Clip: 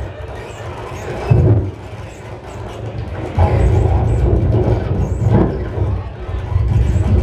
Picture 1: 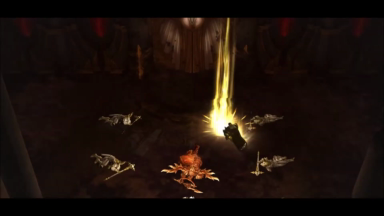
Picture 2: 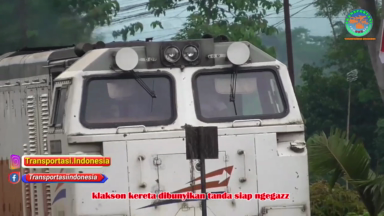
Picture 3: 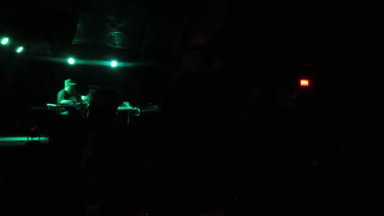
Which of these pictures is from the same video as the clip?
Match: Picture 3